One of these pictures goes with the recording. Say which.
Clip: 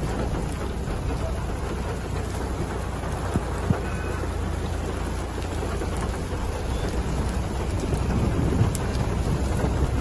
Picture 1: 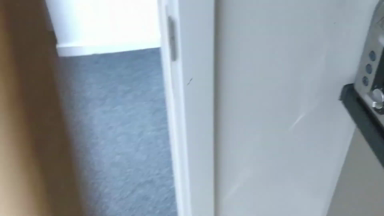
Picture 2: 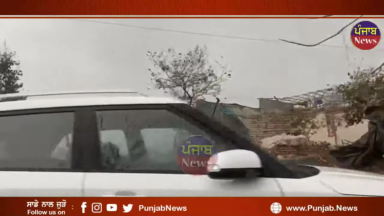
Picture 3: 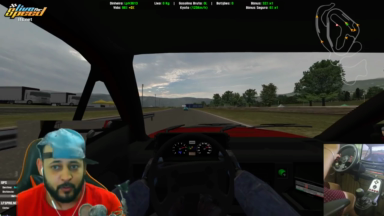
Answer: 2